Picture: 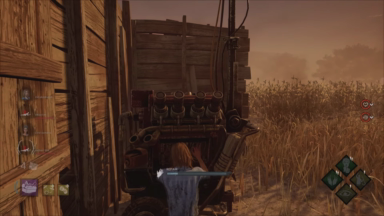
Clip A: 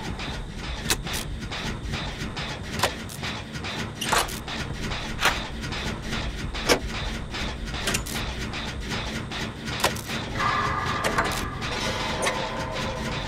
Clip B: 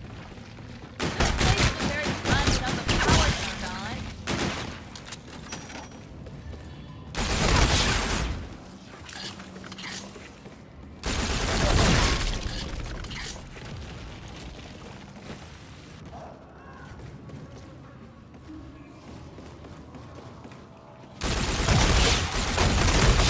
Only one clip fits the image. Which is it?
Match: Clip A